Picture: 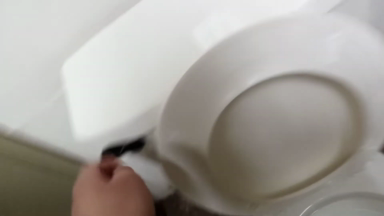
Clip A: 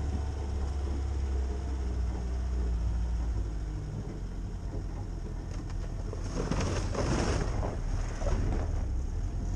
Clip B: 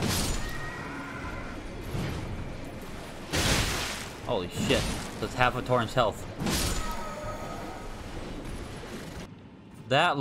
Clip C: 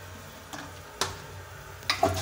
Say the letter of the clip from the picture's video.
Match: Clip C